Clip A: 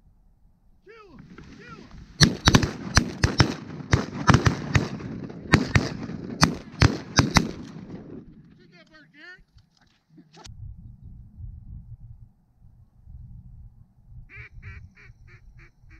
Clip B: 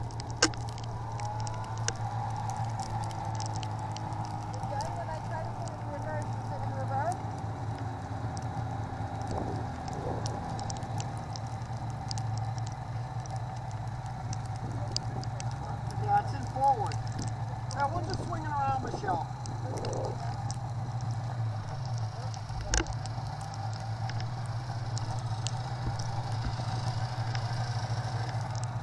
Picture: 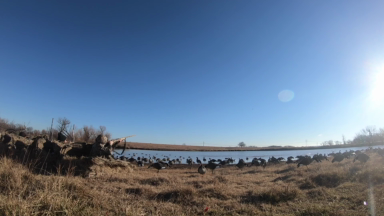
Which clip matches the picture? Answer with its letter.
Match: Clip A